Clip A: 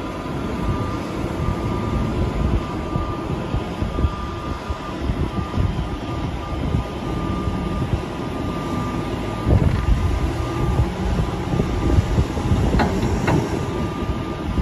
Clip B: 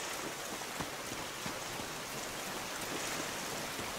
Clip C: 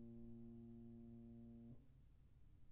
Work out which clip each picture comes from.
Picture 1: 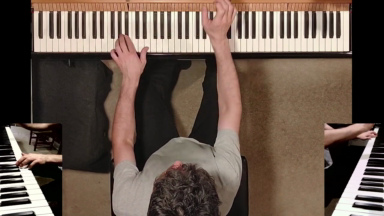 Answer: C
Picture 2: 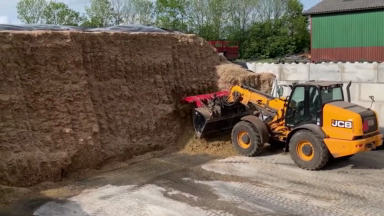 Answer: A